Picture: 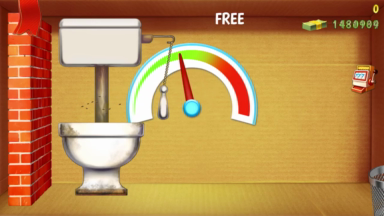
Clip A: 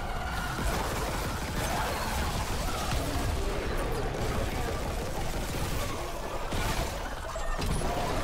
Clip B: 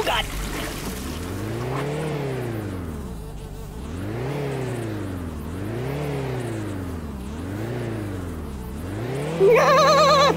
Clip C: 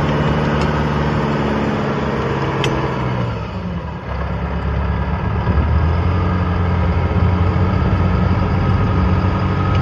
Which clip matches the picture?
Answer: B